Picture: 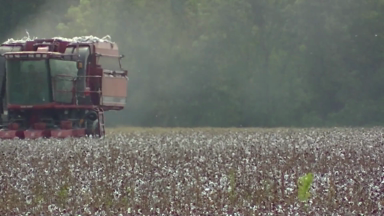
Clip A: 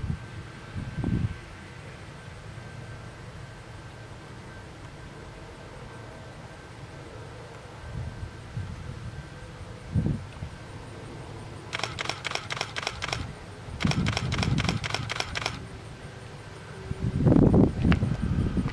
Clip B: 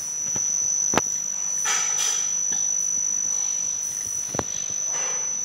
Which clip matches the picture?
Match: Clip A